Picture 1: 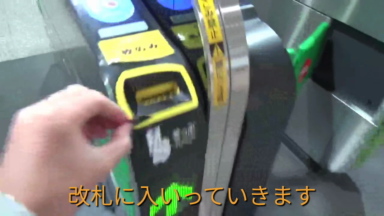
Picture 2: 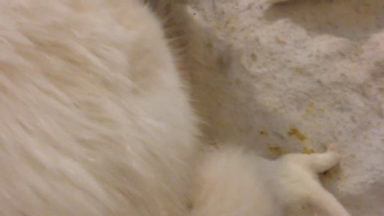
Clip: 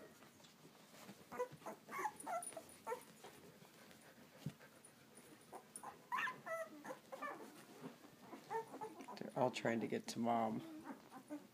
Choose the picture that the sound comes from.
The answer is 2